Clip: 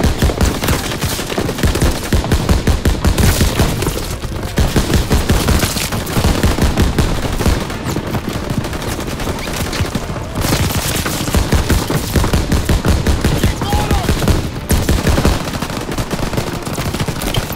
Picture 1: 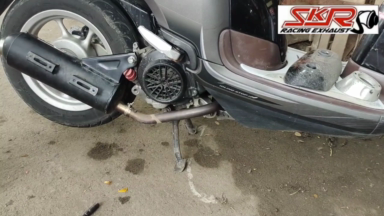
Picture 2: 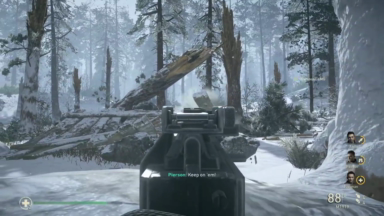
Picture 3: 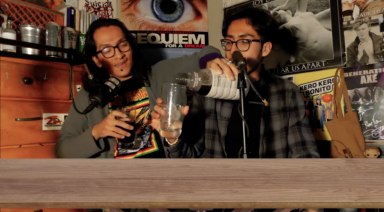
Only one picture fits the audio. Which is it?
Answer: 2